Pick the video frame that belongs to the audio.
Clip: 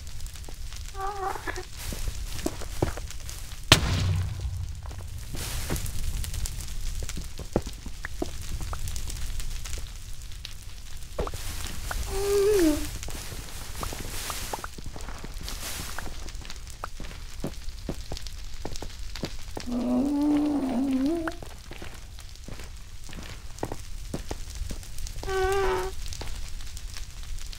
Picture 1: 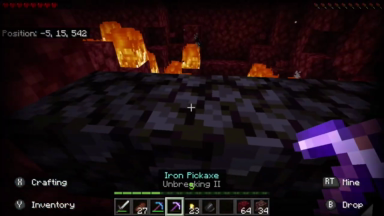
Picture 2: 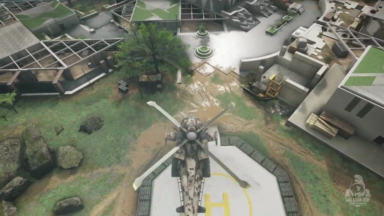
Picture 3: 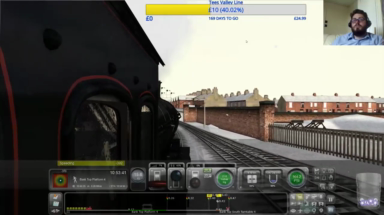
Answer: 1